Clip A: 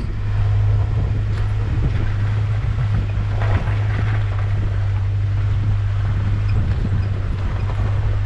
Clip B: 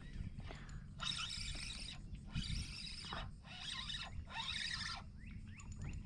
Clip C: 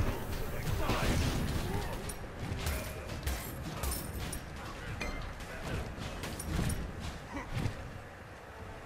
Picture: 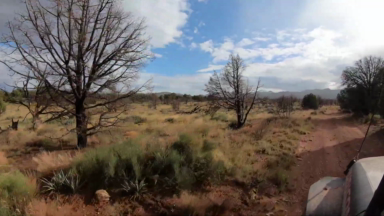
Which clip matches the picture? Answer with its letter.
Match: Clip A